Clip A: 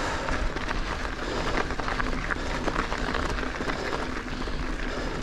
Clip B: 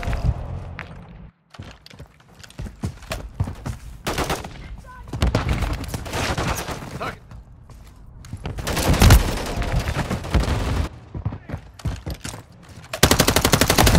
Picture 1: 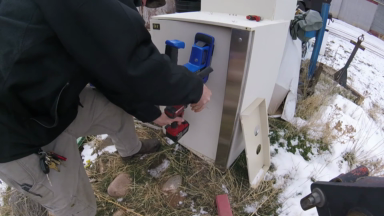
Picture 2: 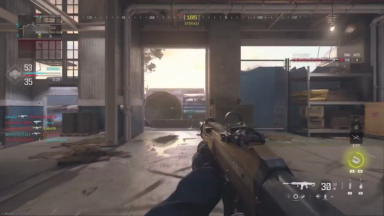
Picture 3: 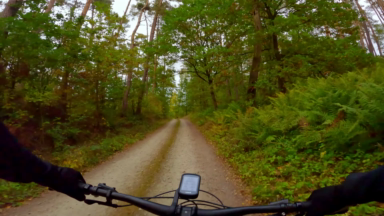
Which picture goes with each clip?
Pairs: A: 3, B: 2